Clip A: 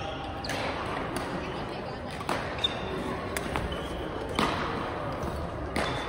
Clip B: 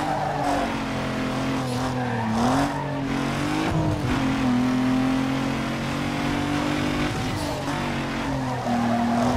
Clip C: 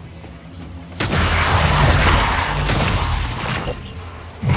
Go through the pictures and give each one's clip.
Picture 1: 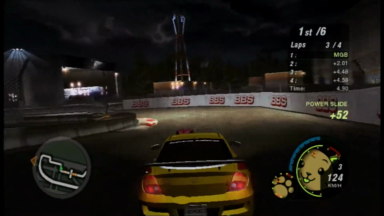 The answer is B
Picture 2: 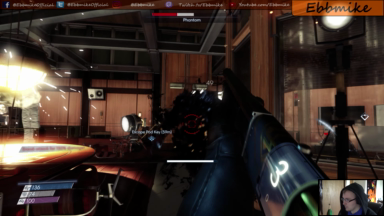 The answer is C